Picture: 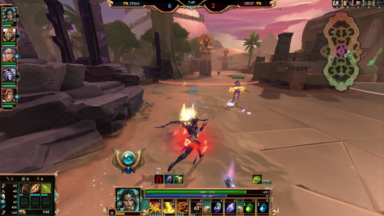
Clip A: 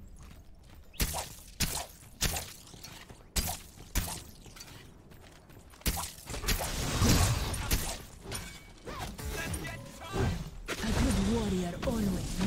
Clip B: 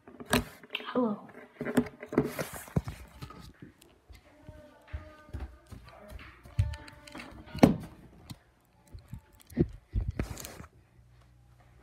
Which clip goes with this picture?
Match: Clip A